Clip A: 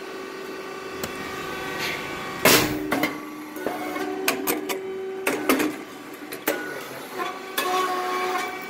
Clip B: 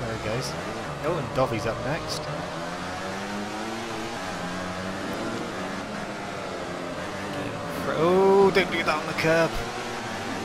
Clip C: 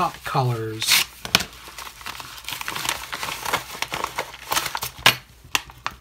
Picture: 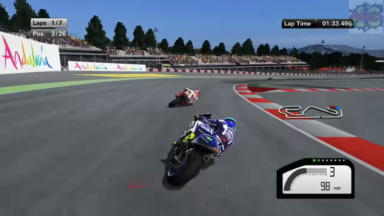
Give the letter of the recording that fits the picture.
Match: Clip B